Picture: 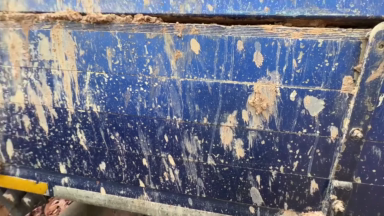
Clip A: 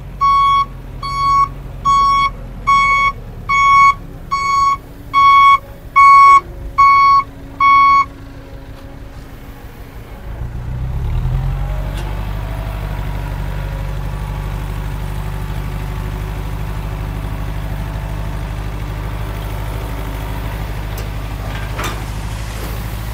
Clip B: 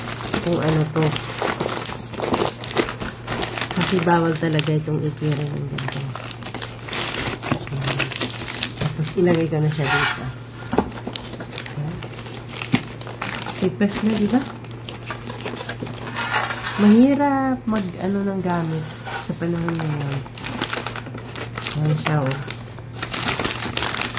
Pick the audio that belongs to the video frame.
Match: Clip A